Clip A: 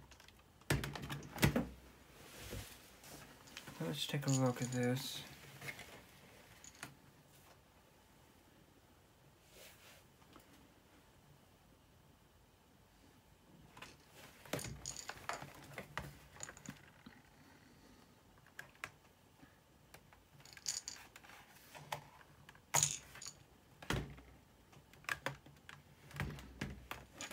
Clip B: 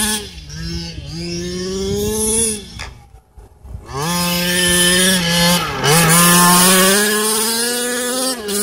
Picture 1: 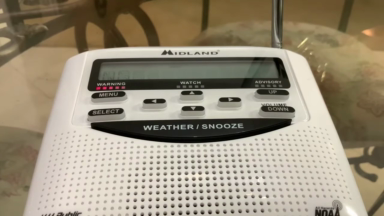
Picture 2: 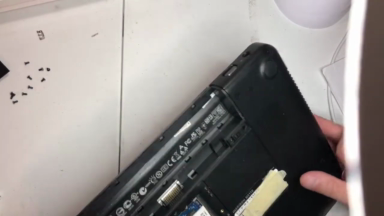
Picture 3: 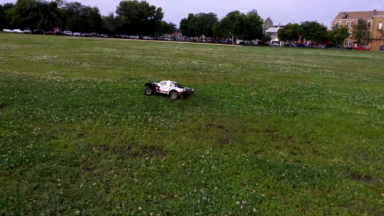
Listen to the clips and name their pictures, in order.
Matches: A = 2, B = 3